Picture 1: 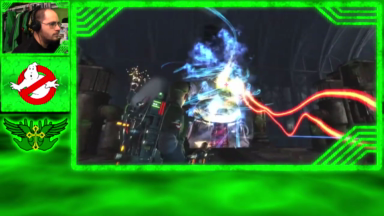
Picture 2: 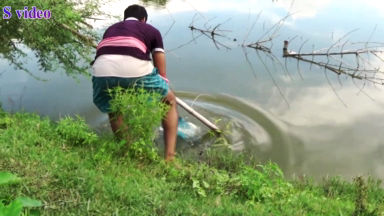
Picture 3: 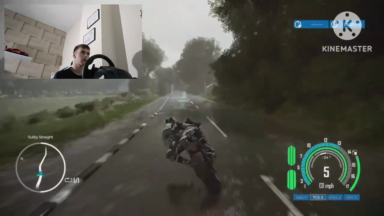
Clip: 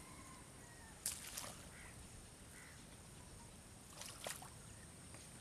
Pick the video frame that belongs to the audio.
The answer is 2